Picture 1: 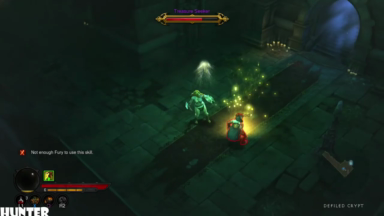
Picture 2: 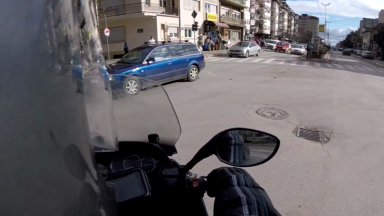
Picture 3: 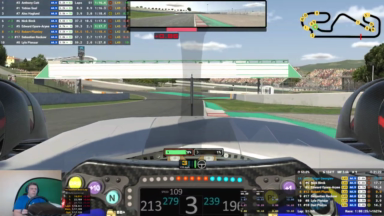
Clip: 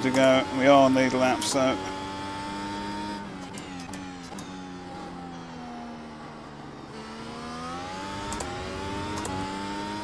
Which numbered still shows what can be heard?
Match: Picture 3